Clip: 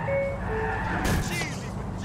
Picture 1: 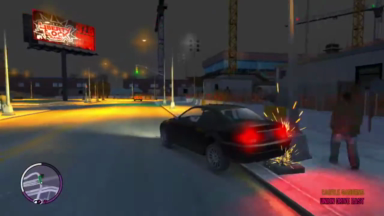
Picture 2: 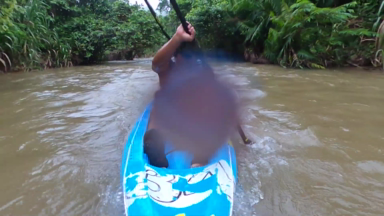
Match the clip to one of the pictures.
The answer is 1